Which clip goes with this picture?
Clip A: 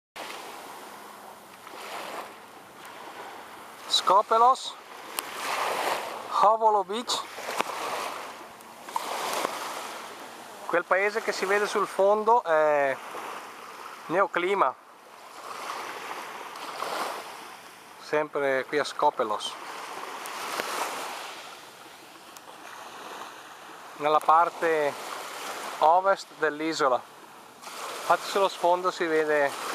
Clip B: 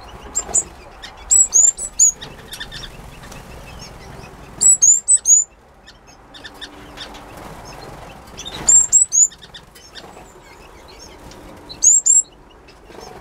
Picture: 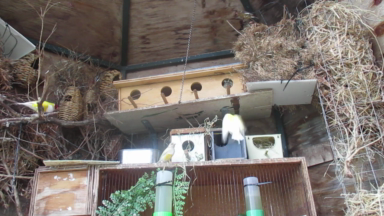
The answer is B